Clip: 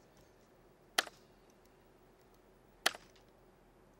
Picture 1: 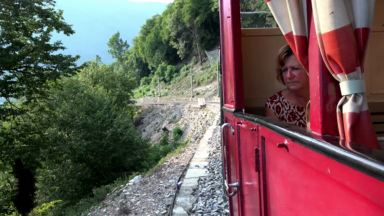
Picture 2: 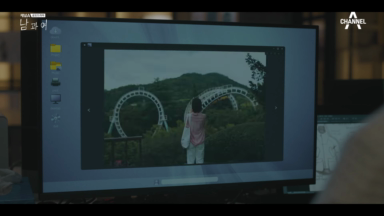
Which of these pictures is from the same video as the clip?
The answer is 2